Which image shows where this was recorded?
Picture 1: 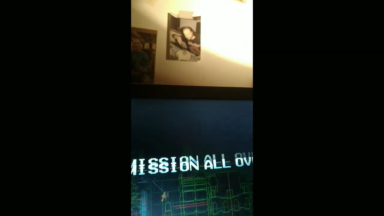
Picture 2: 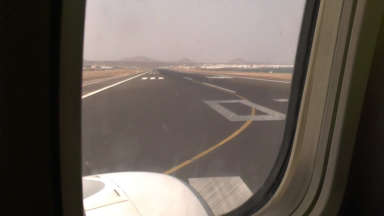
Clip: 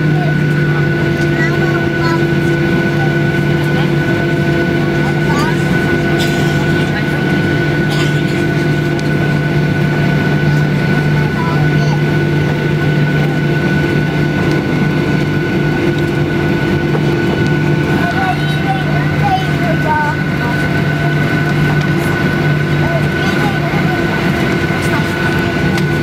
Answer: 2